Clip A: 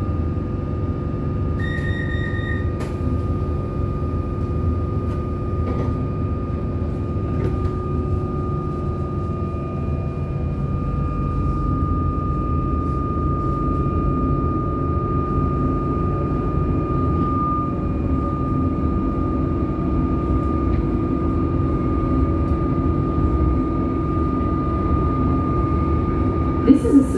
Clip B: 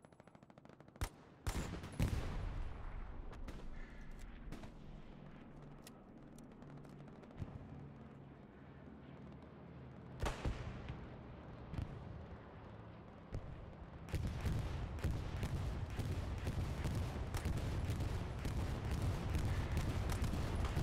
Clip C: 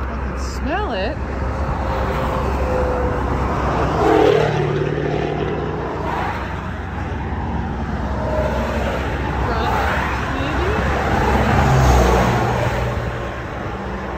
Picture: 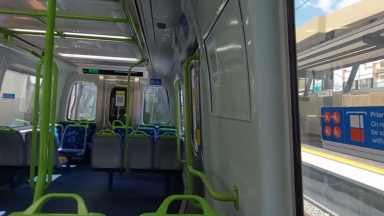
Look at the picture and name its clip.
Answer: A